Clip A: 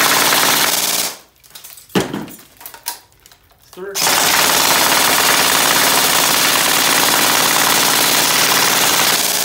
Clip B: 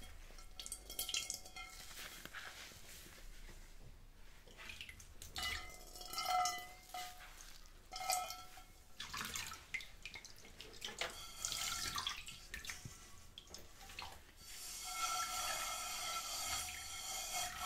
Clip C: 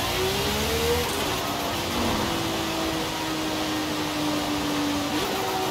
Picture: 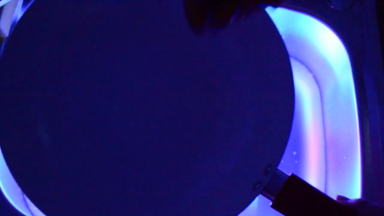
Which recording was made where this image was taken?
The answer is B